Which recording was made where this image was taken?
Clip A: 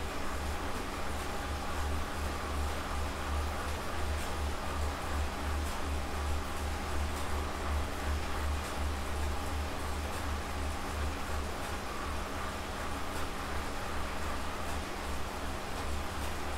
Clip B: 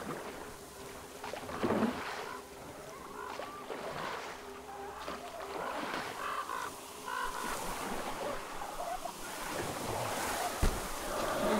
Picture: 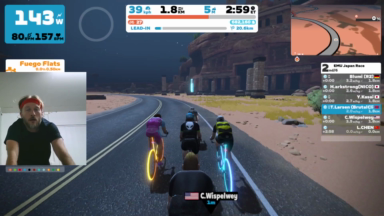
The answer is A